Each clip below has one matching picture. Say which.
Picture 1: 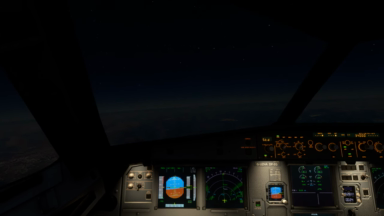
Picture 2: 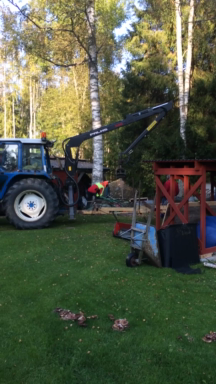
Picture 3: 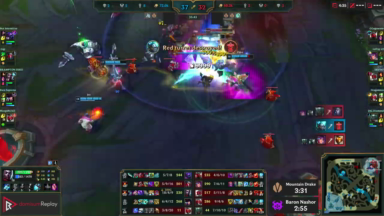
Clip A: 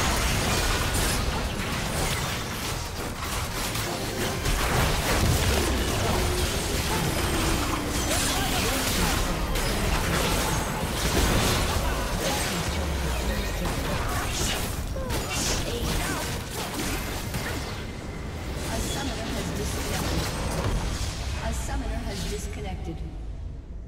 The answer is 3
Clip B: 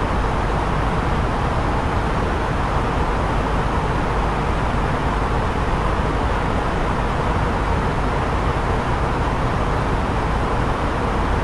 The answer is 1